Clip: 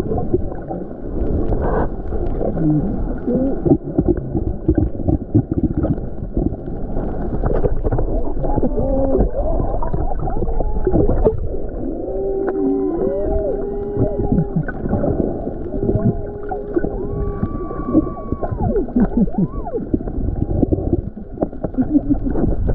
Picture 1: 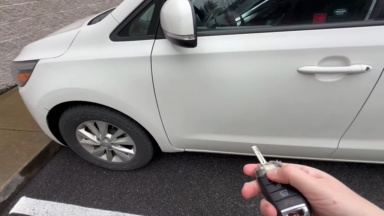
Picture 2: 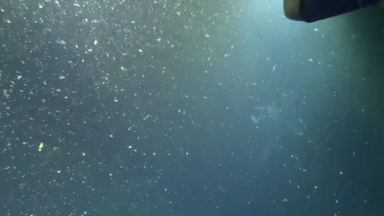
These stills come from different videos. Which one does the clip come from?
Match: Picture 2